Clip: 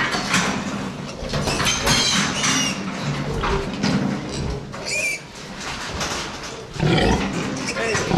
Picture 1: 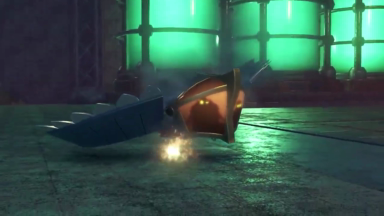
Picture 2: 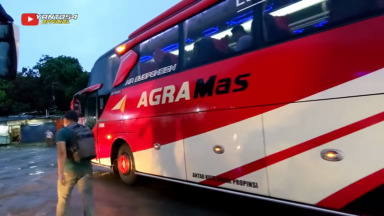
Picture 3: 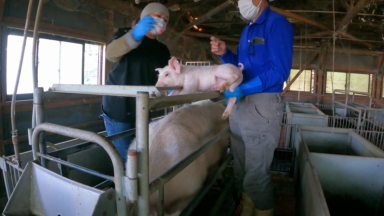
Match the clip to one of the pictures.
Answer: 3